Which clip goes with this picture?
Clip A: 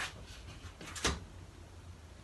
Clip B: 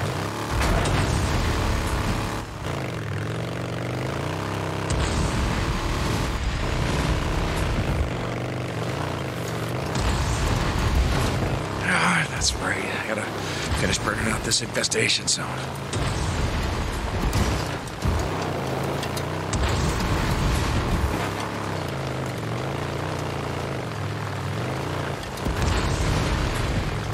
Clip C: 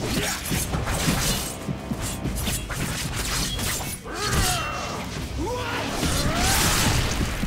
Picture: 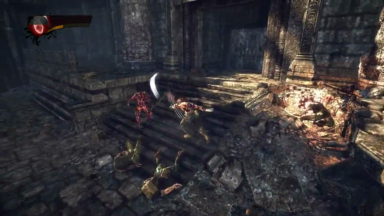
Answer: C